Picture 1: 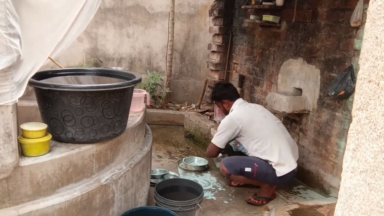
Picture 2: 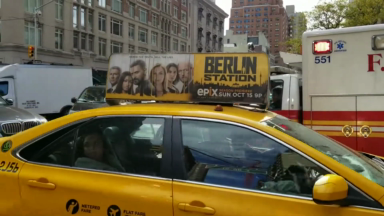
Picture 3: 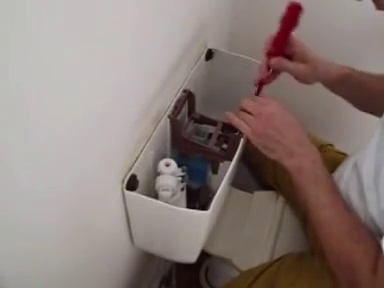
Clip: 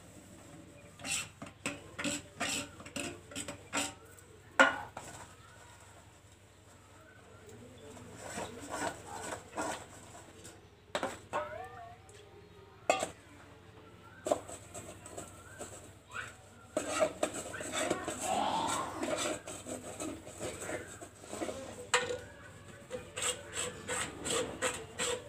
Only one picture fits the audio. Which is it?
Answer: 1